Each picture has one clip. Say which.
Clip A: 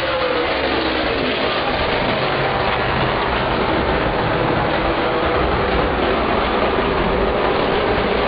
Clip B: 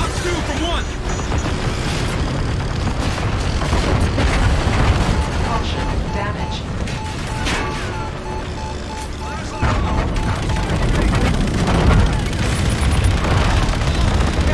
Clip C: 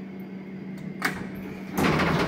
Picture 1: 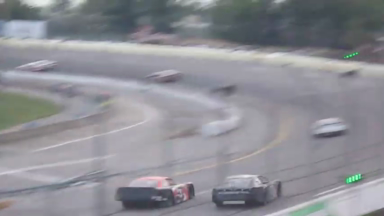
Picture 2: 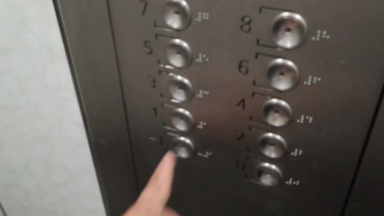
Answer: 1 A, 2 C